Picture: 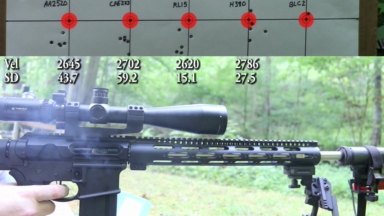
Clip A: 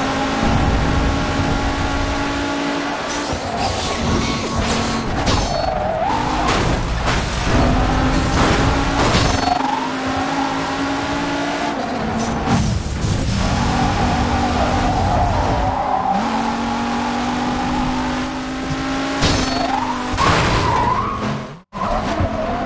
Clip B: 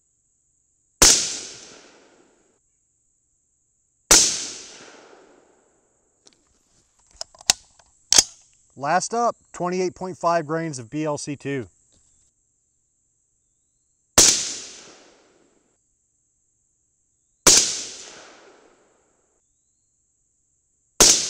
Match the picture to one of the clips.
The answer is B